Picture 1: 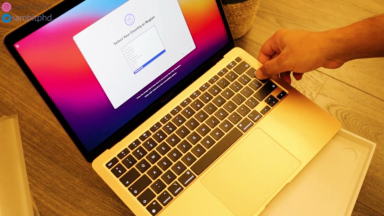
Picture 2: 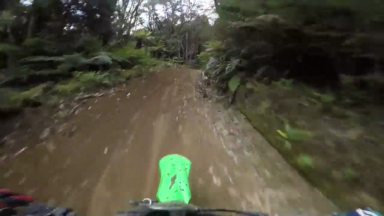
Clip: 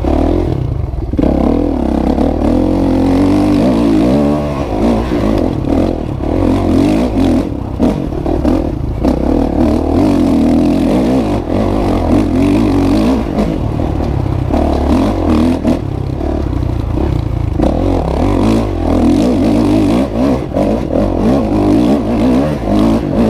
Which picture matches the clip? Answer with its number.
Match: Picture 2